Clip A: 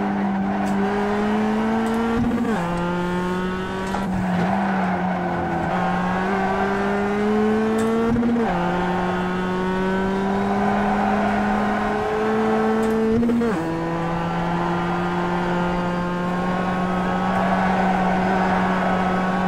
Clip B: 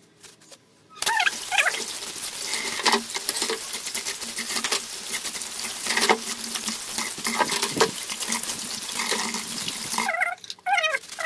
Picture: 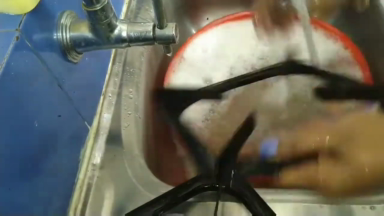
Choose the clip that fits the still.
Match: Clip B